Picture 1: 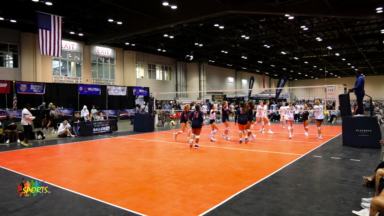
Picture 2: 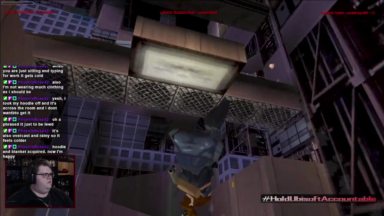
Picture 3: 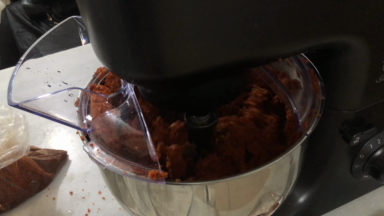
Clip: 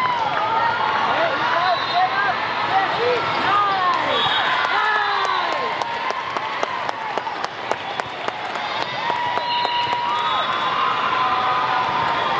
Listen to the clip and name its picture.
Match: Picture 1